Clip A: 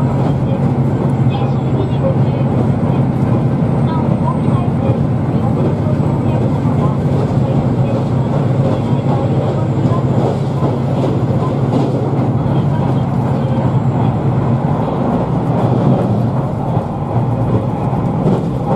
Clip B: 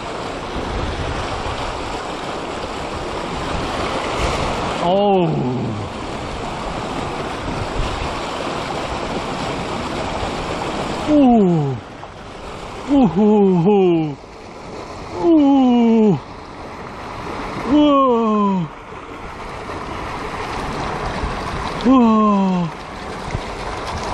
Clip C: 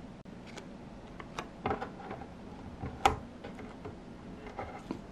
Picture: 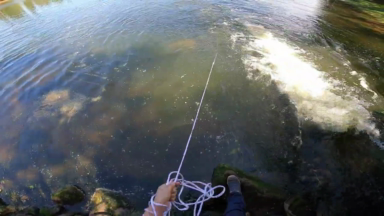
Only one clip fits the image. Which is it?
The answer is B